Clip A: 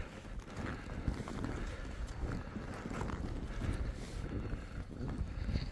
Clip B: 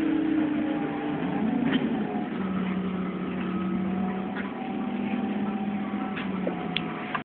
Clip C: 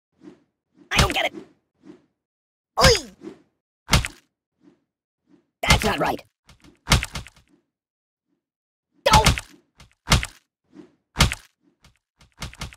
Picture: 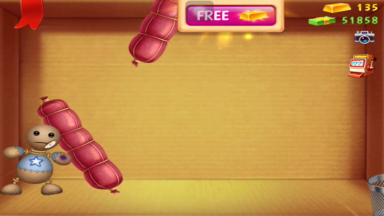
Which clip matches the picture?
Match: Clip C